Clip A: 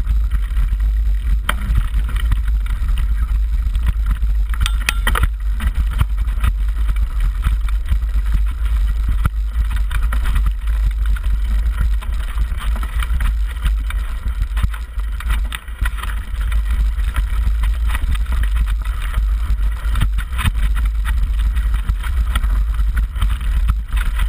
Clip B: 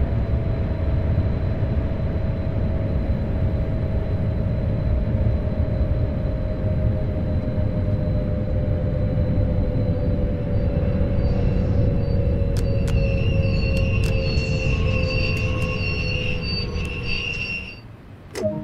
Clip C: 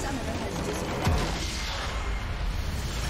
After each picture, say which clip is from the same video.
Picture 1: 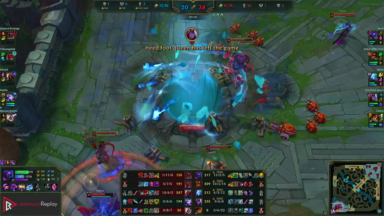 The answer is C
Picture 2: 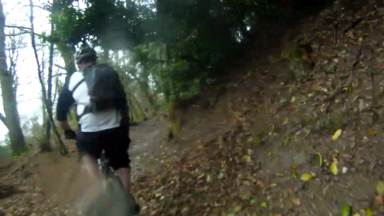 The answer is A